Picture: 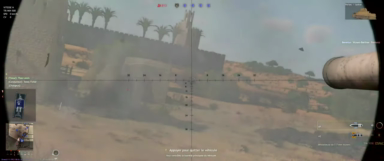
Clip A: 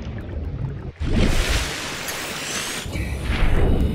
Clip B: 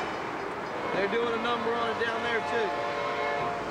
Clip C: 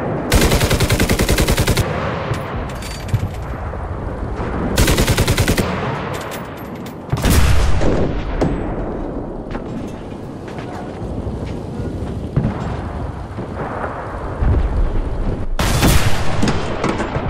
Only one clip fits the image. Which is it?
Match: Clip C